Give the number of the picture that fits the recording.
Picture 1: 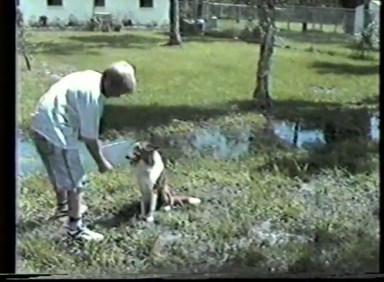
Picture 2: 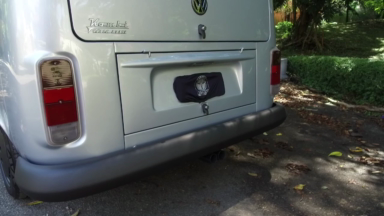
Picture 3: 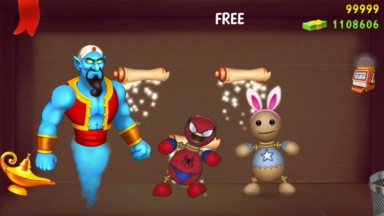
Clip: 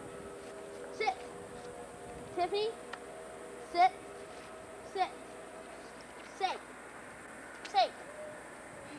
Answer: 1